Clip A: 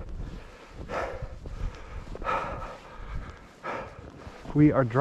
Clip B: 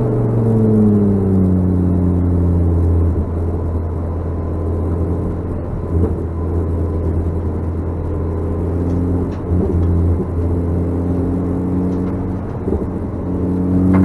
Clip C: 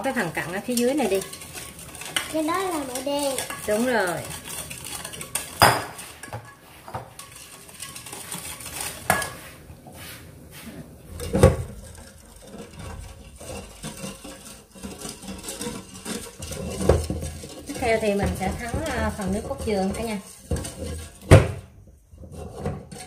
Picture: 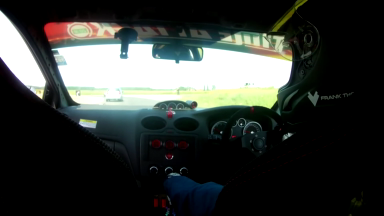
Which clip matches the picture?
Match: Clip B